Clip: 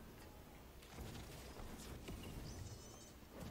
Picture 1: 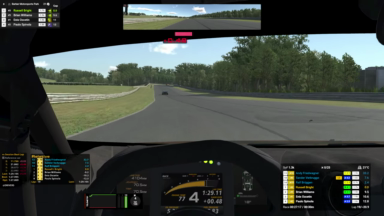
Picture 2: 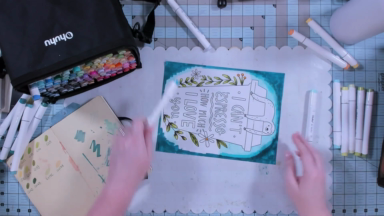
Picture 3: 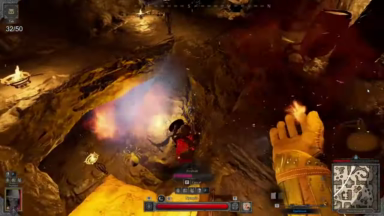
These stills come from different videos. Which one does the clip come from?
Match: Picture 3